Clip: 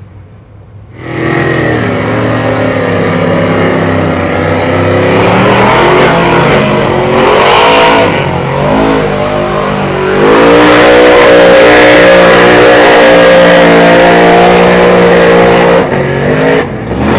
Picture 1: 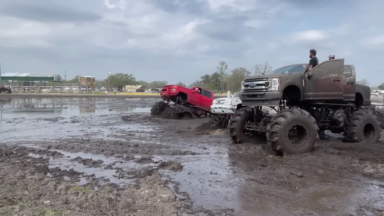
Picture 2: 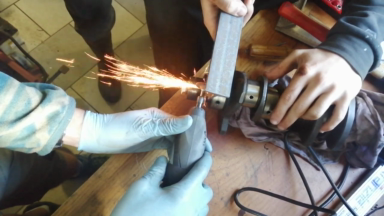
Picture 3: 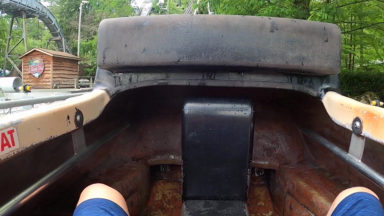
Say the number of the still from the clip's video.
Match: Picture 1